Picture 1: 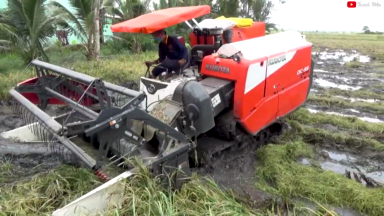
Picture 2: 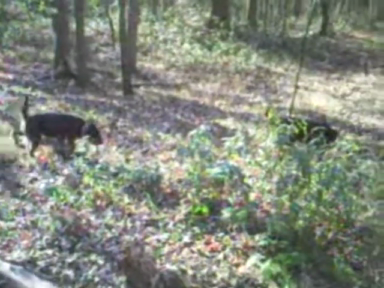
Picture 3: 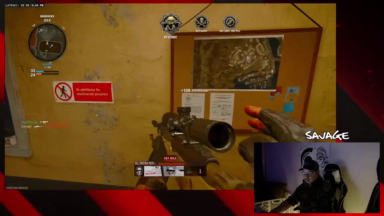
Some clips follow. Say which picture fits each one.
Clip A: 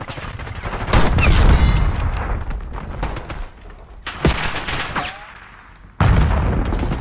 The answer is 3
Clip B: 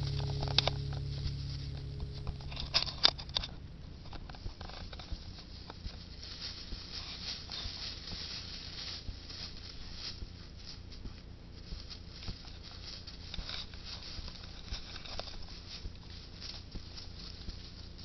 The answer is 2